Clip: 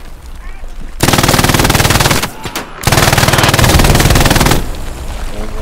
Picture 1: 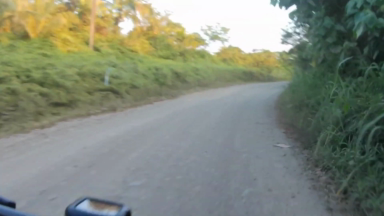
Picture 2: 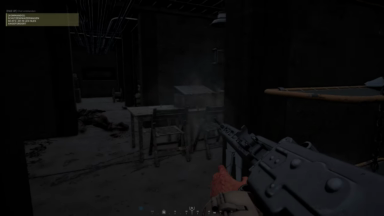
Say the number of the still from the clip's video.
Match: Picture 2